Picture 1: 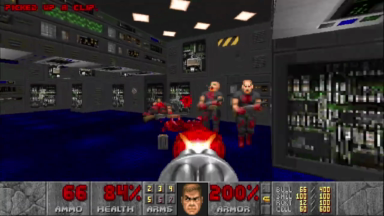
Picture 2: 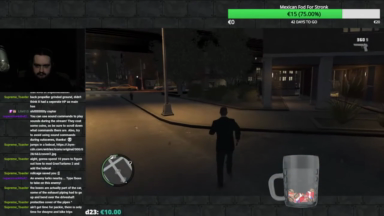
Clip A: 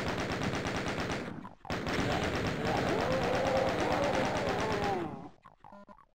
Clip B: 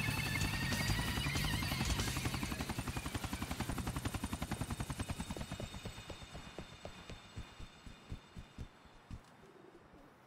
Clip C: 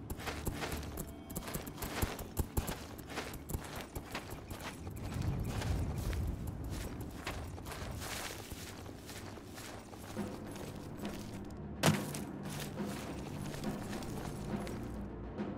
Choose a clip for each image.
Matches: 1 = A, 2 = B